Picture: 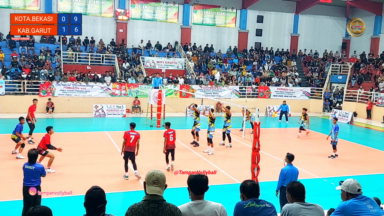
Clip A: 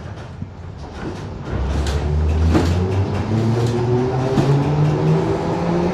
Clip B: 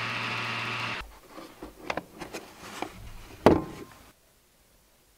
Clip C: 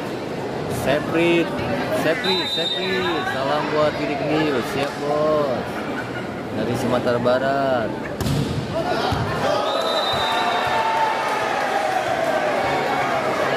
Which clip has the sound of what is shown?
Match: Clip C